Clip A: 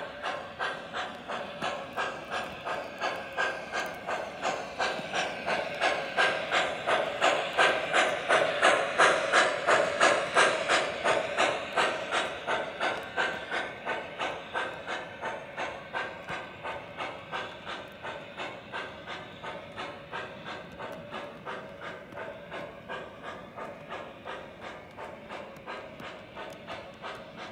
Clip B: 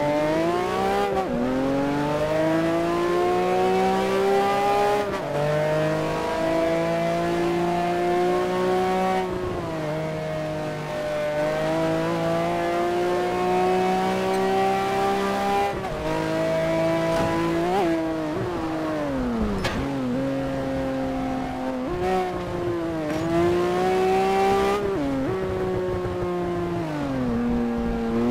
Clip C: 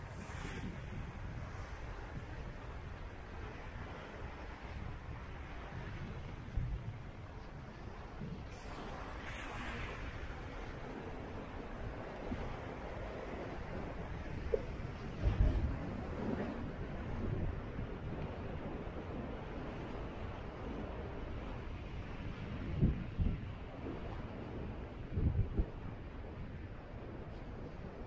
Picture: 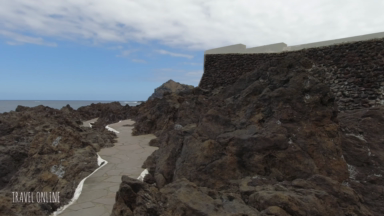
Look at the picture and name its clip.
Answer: C